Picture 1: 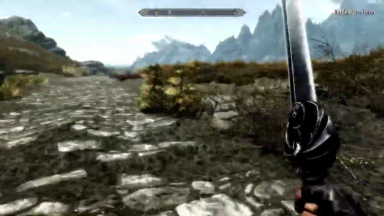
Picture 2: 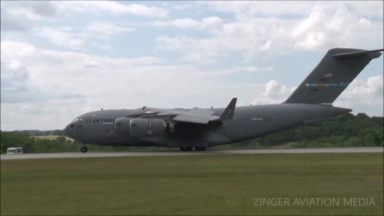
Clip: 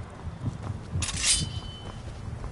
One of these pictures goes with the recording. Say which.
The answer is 1